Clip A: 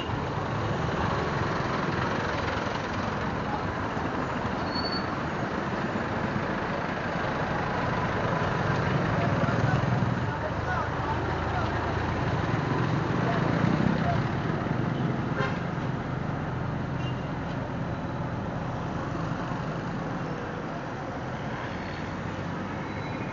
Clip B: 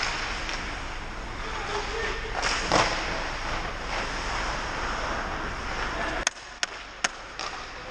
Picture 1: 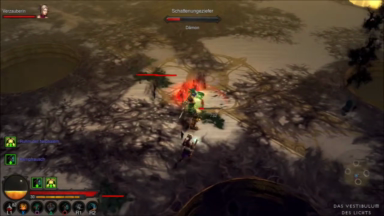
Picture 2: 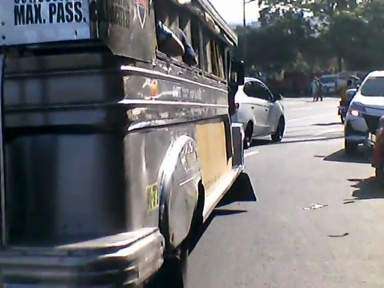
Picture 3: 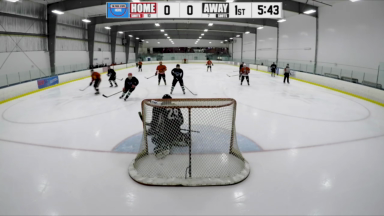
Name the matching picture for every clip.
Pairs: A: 2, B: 3